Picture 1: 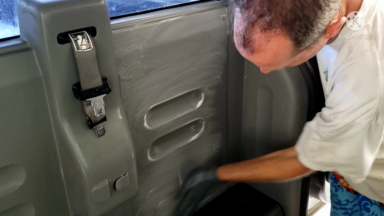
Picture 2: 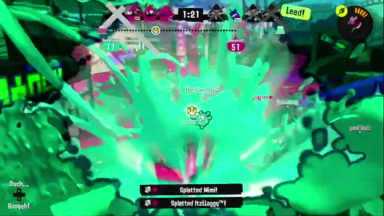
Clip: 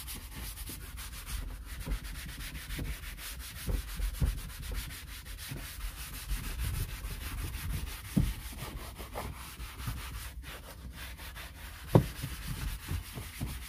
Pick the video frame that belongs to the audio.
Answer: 1